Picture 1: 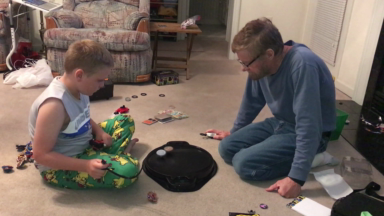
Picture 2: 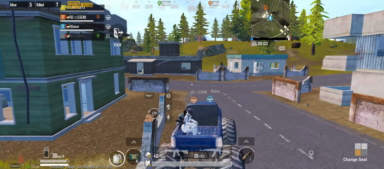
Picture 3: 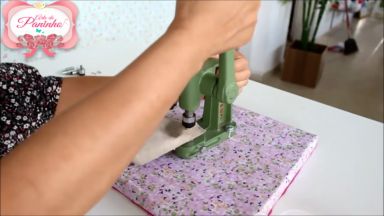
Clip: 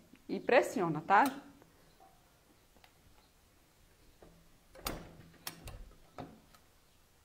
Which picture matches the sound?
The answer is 3